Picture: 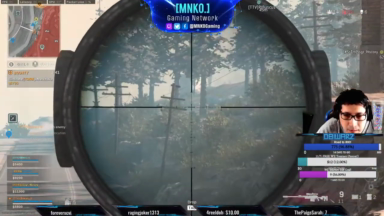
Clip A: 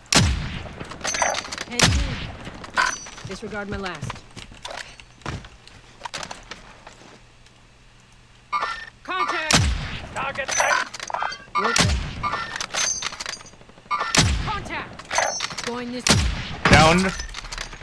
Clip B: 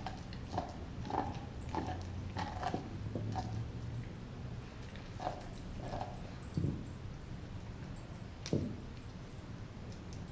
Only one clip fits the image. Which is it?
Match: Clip A